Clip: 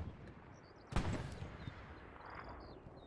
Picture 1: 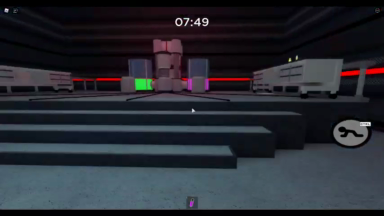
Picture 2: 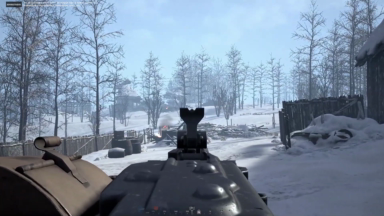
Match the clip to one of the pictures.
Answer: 2